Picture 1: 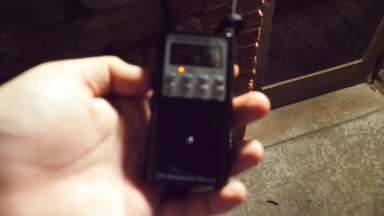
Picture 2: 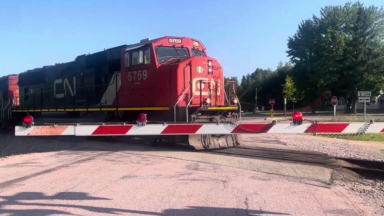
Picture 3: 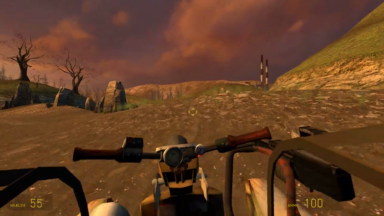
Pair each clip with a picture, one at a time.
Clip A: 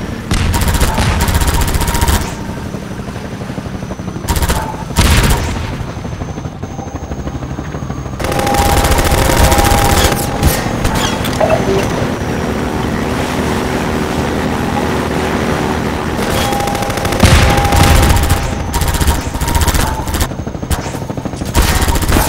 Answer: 3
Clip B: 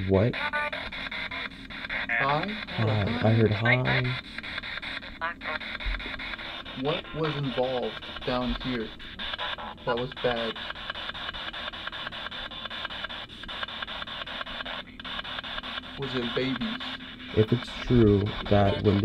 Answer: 1